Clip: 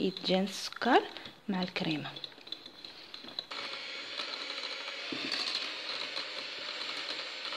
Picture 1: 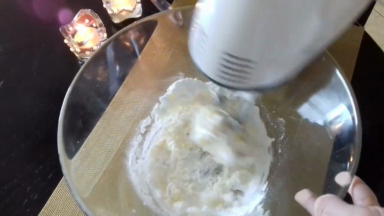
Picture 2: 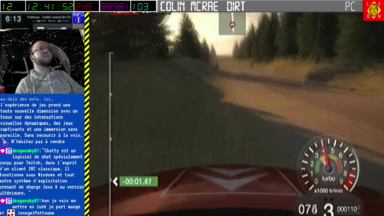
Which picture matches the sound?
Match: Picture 1